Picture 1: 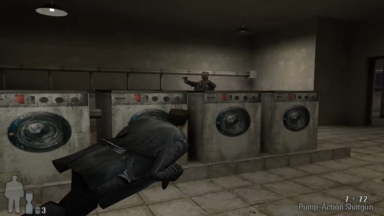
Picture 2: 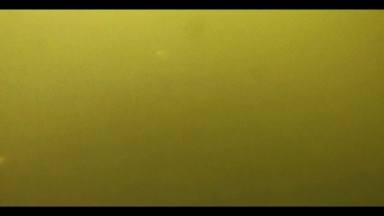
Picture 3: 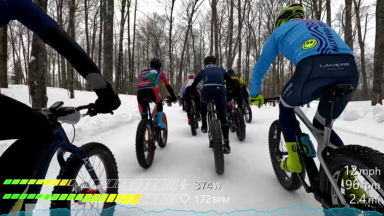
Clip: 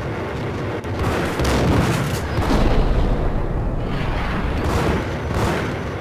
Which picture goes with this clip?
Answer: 1